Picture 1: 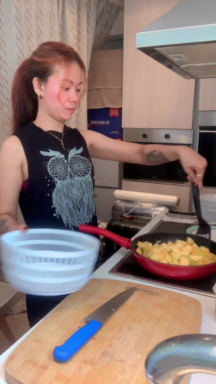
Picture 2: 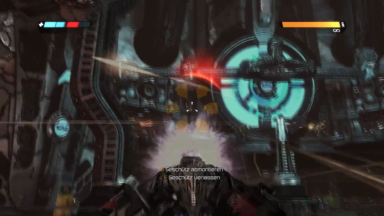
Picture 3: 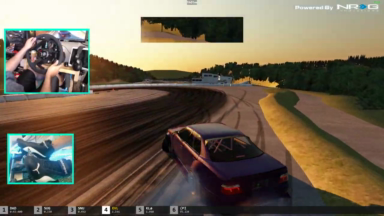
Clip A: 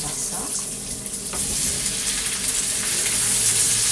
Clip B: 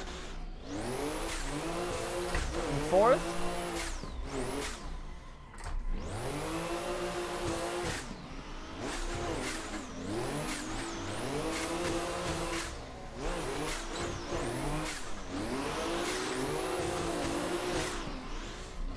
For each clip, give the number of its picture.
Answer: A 1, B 3